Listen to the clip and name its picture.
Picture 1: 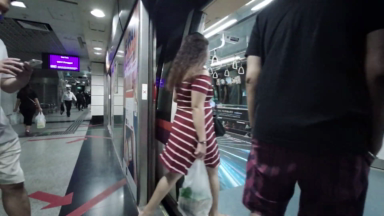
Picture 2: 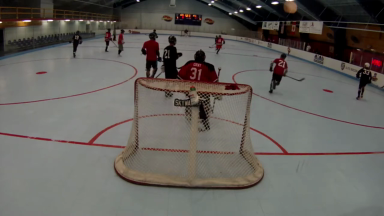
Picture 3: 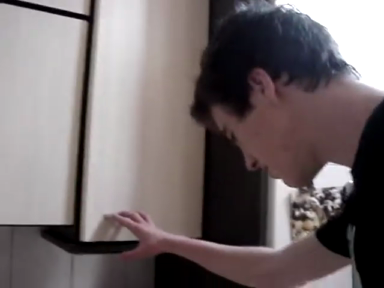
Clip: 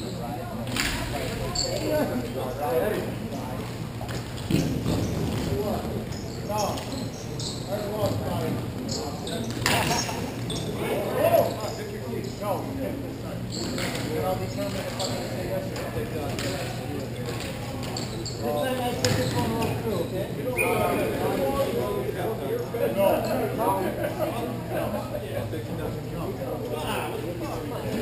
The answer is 2